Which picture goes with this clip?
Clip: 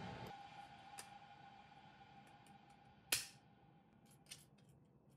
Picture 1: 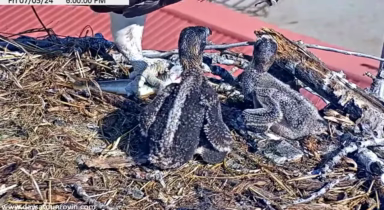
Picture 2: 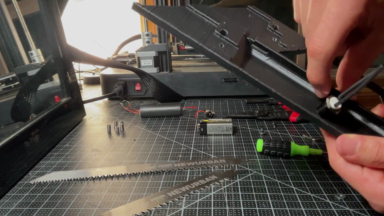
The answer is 2